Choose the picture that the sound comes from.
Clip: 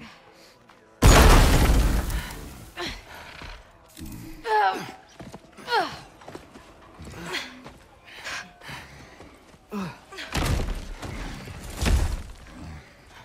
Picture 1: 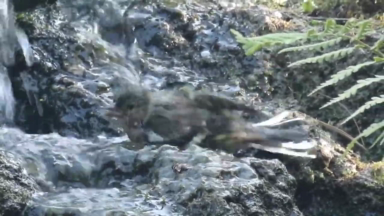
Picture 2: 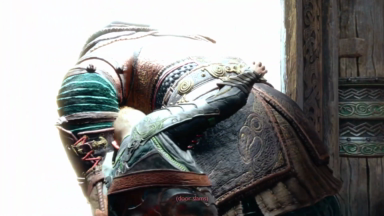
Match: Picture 2